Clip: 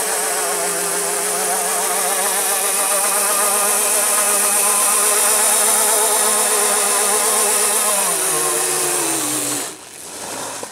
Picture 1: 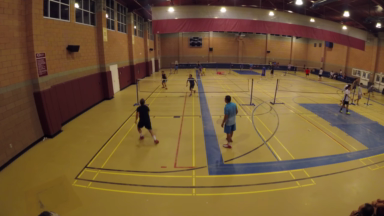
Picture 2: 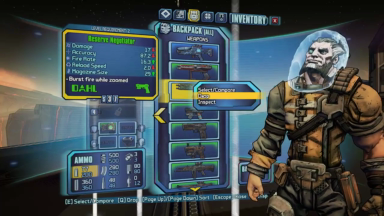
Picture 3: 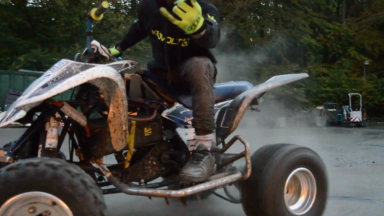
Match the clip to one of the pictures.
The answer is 3